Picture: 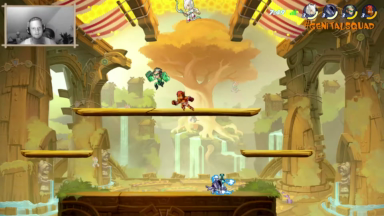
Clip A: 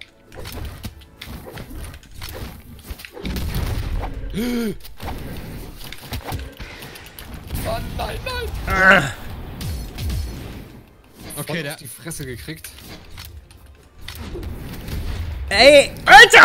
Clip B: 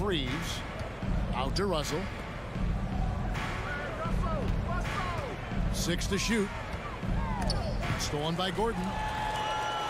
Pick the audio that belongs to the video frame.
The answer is A